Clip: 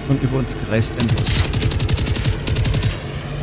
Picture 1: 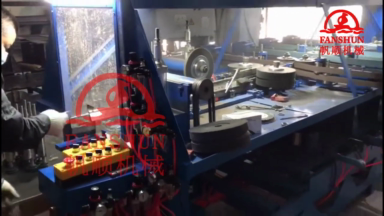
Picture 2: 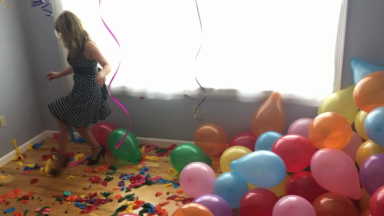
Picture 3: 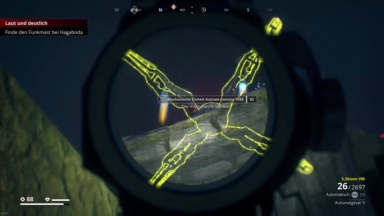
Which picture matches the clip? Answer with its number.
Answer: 3